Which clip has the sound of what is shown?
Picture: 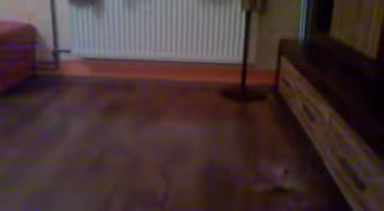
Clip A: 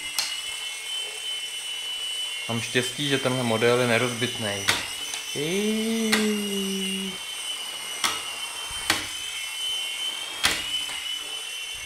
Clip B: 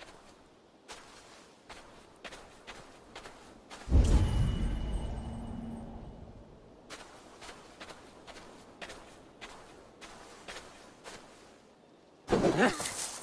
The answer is A